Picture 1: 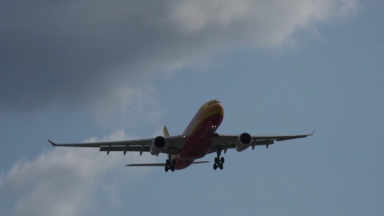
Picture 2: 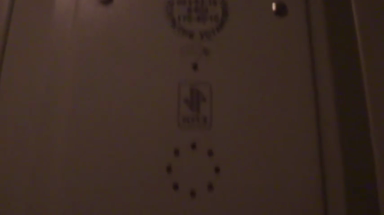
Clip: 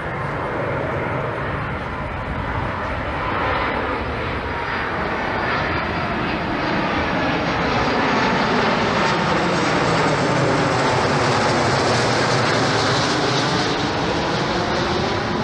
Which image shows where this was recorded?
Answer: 1